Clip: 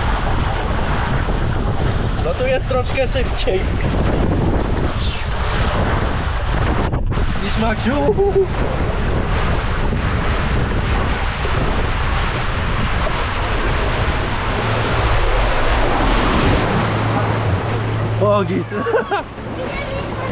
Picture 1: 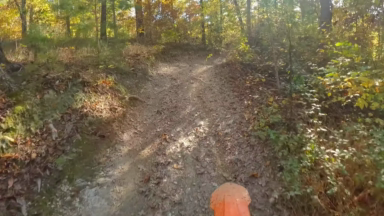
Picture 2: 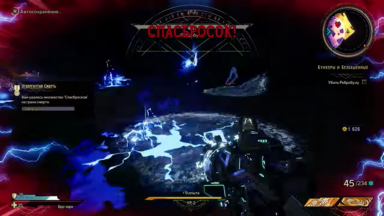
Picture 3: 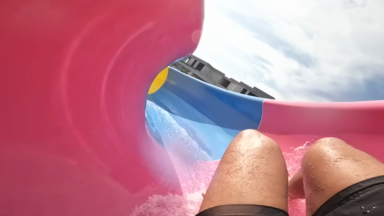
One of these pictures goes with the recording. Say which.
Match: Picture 3